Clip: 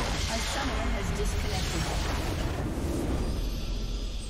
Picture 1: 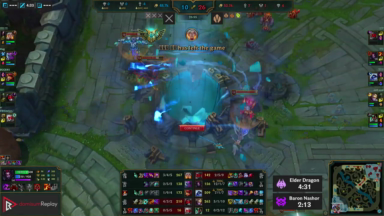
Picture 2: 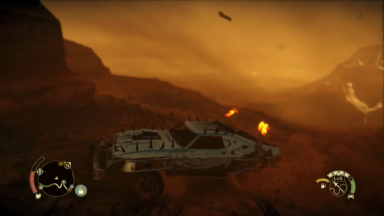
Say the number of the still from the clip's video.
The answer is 1